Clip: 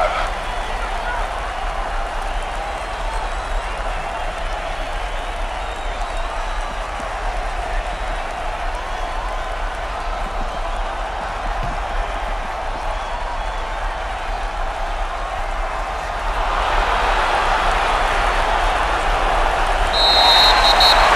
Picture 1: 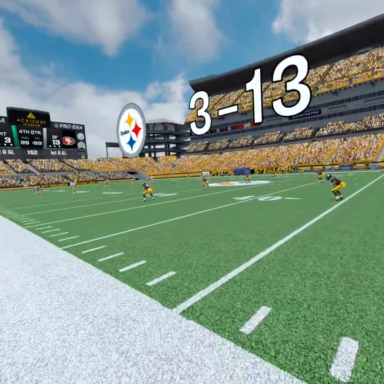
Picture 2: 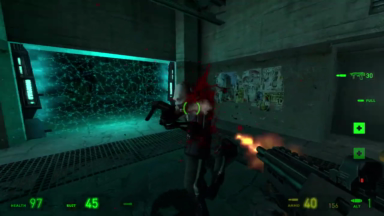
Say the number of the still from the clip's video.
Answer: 1